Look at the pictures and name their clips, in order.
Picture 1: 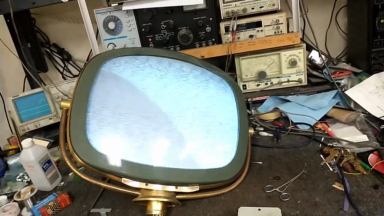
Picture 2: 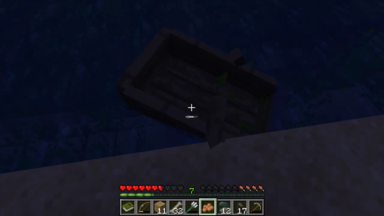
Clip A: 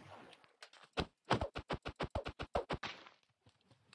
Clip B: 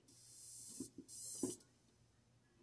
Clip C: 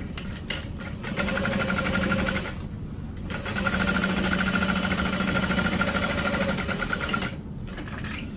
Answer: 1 B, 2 A